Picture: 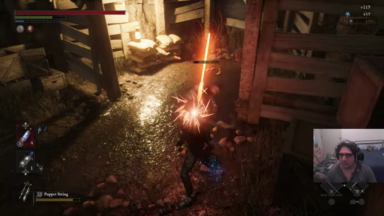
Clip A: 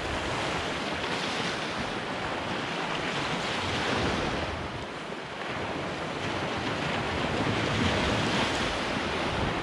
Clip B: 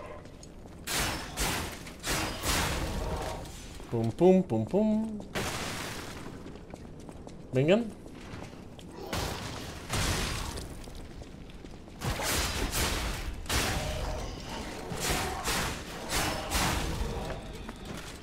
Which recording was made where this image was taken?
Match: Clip B